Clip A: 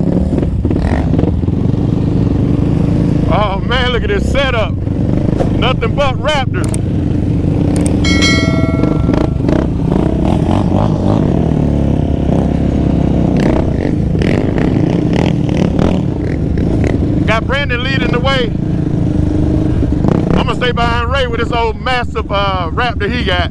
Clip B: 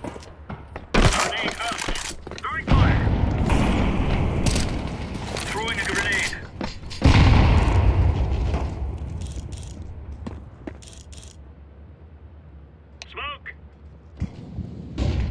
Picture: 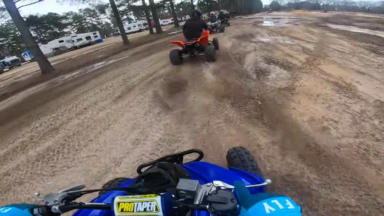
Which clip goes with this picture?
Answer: A